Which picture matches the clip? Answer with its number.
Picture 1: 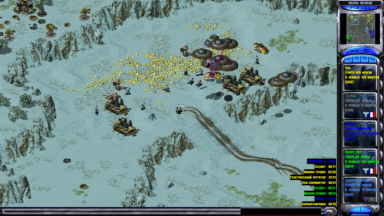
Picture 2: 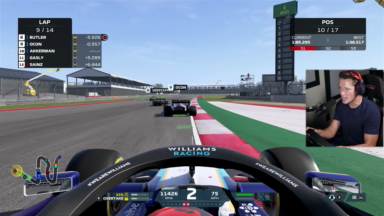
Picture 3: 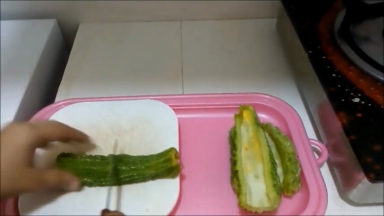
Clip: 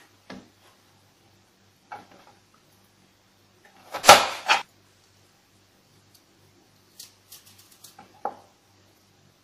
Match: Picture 3